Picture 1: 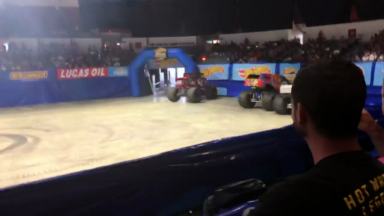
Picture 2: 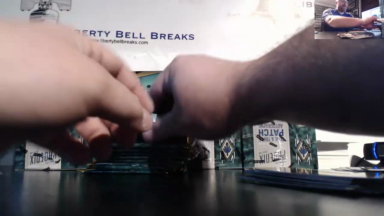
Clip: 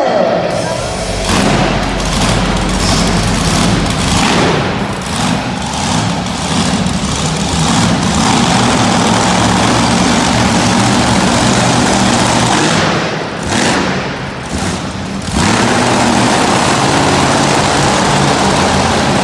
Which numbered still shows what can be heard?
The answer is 1